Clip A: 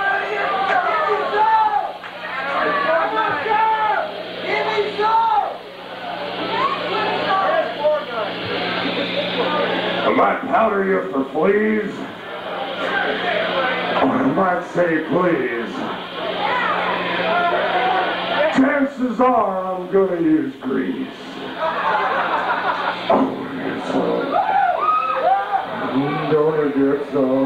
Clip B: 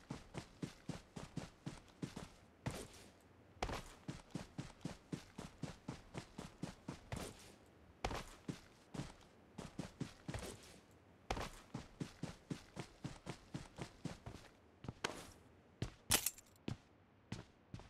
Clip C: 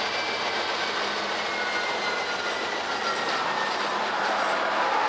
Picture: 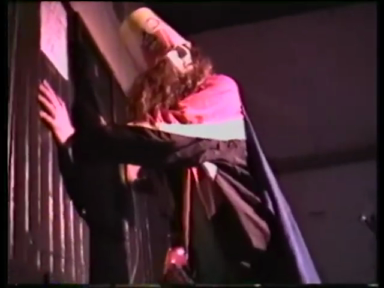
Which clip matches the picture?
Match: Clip A